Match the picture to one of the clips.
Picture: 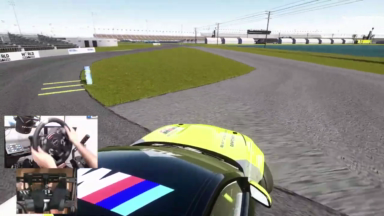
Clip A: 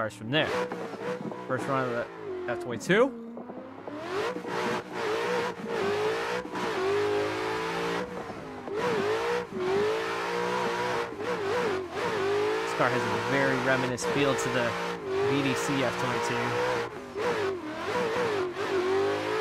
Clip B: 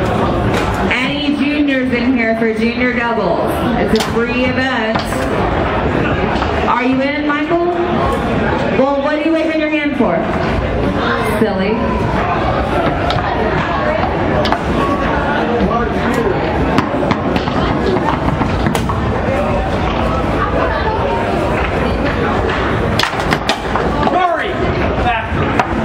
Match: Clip A